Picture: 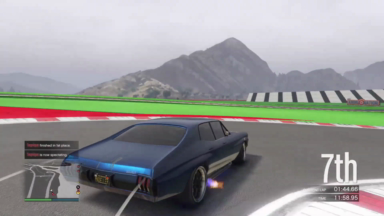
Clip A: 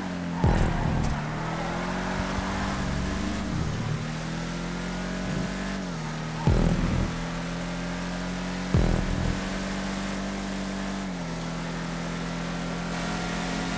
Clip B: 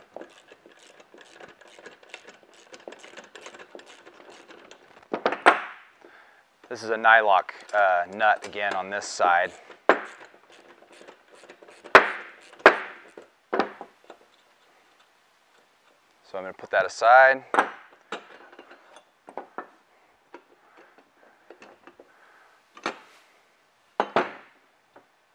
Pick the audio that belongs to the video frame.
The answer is A